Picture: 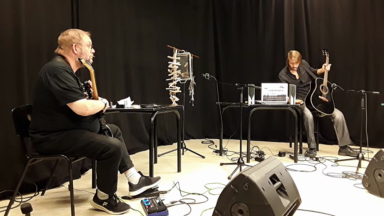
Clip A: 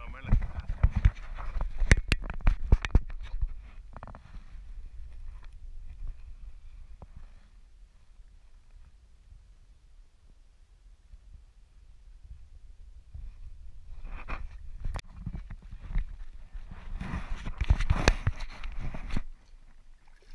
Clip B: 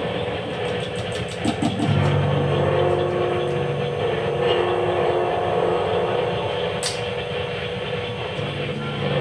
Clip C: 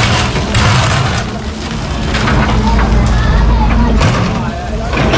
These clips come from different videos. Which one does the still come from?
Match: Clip B